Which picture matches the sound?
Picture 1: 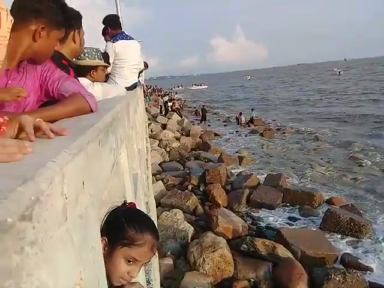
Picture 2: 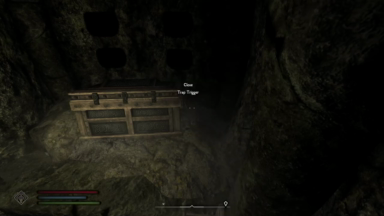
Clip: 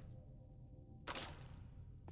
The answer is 2